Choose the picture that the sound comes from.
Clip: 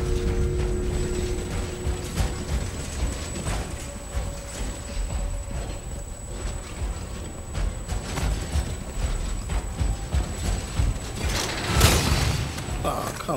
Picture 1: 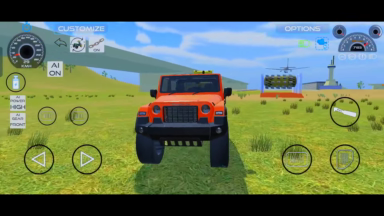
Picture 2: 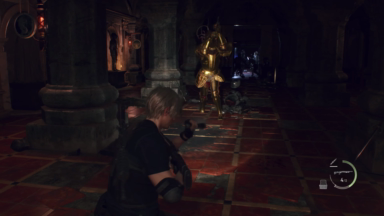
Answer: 2